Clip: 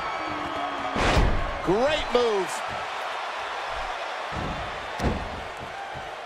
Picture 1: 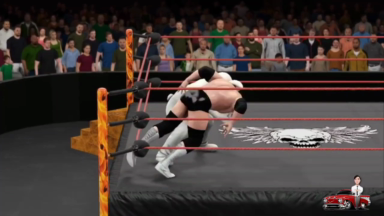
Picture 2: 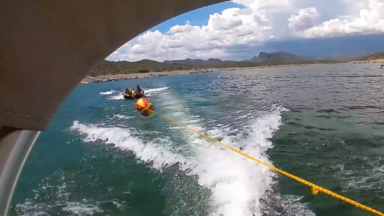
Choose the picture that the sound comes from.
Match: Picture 1